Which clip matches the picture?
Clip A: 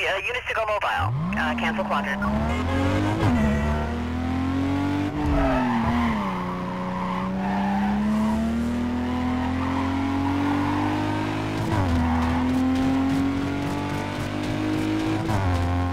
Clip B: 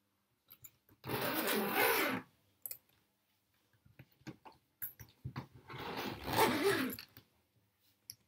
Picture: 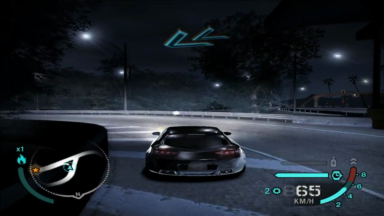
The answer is A